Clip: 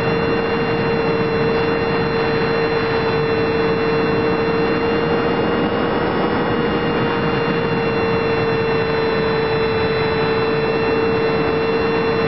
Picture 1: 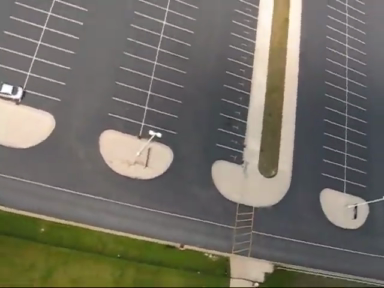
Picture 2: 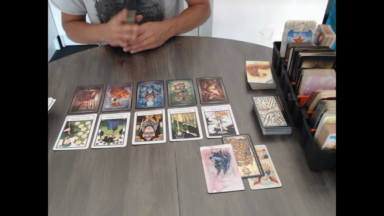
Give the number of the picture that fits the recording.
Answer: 1